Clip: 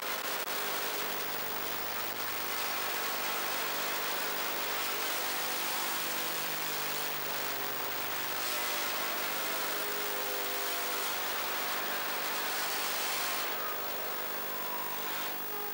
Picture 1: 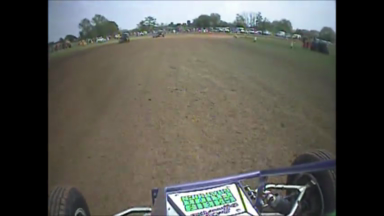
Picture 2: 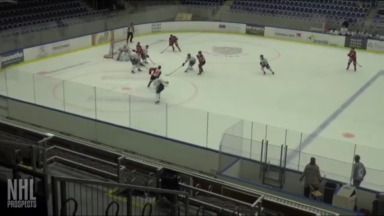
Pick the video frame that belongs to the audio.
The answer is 1